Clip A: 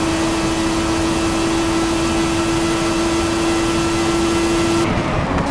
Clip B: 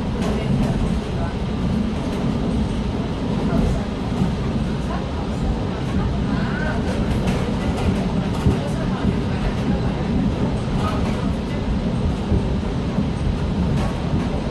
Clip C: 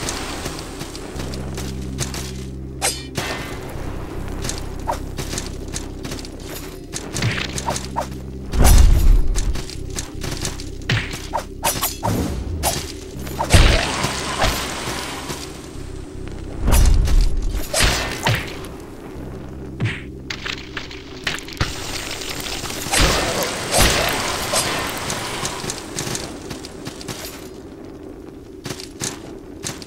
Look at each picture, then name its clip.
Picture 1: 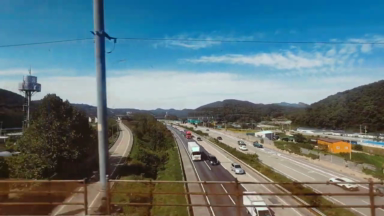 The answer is B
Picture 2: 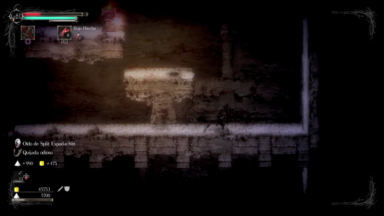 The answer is C